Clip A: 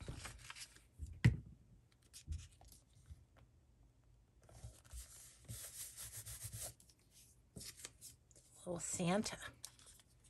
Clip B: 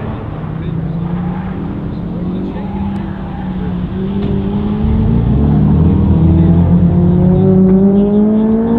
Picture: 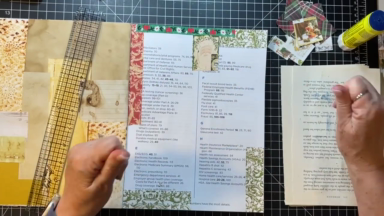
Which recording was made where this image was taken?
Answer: A